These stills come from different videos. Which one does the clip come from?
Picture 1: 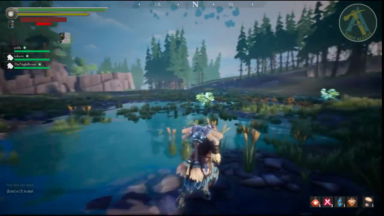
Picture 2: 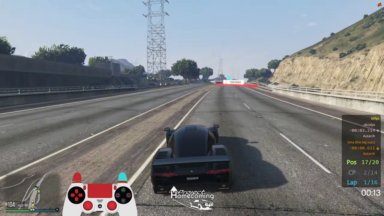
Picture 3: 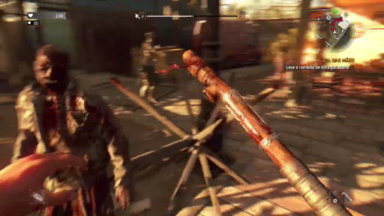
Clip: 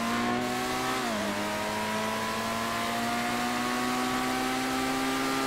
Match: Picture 2